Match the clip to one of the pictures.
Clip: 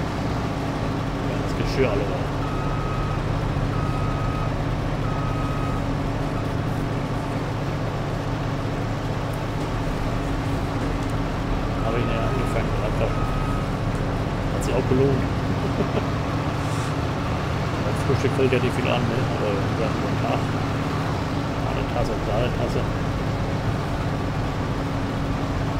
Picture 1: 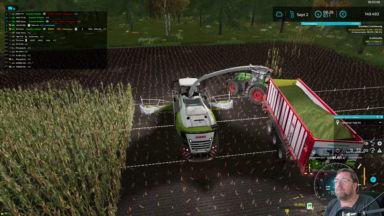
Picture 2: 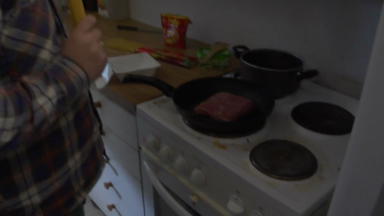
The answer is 1